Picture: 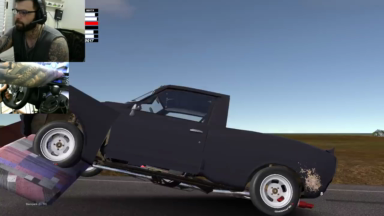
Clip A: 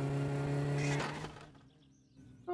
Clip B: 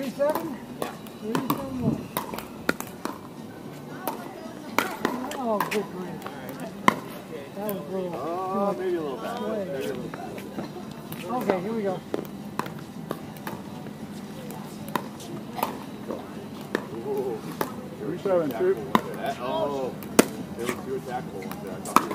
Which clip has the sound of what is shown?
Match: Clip A